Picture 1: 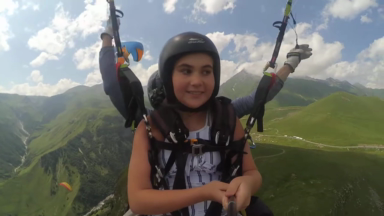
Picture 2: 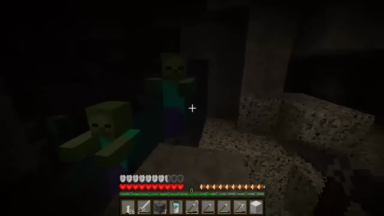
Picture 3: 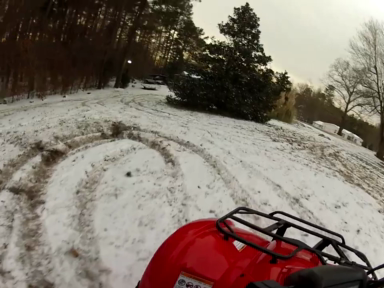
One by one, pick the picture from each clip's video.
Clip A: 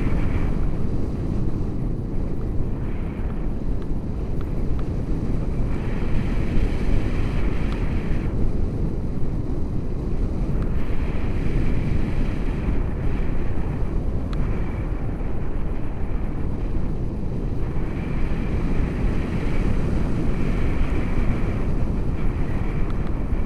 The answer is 1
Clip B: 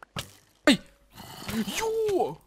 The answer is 2